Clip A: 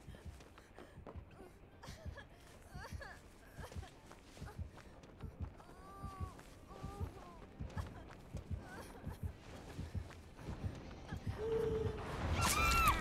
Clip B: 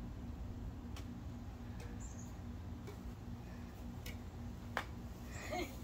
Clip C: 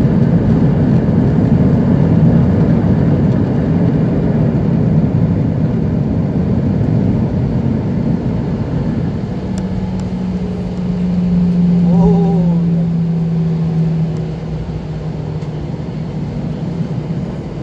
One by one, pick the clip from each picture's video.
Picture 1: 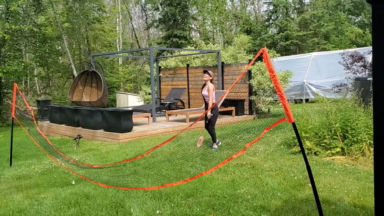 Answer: B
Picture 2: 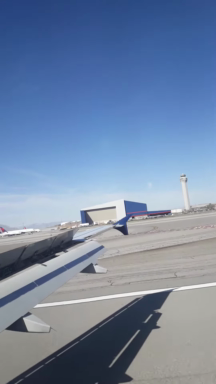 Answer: C